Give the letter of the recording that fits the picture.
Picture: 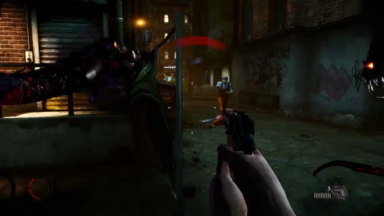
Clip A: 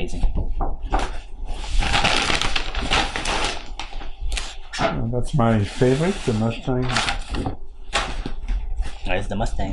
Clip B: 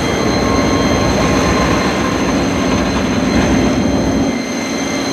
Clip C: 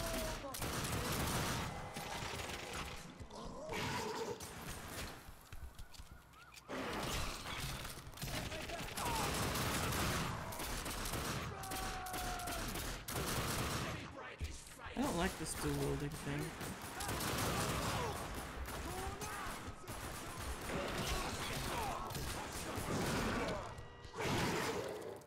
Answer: C